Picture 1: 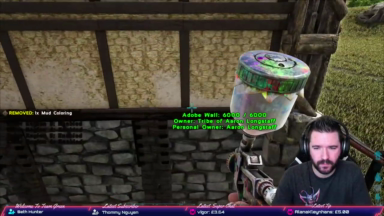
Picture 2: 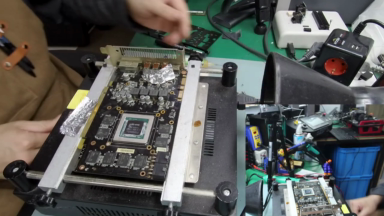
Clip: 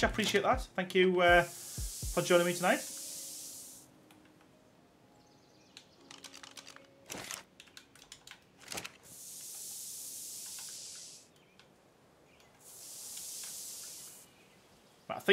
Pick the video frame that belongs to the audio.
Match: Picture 1